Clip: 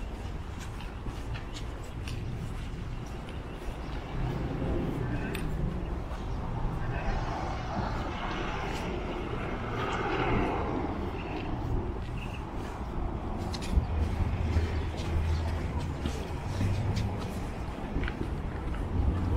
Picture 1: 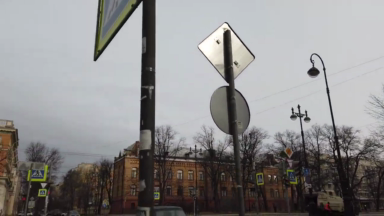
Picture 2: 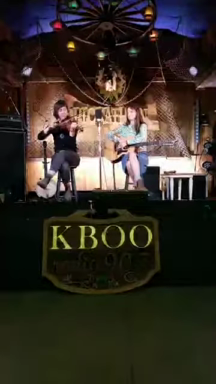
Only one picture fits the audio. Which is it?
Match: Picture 1